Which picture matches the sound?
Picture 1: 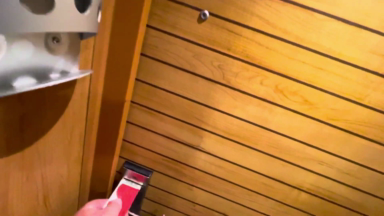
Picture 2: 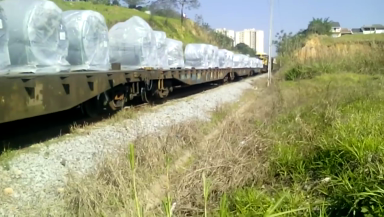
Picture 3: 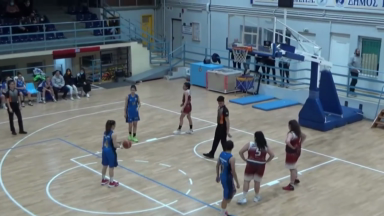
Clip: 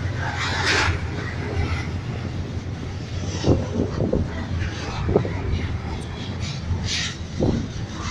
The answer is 2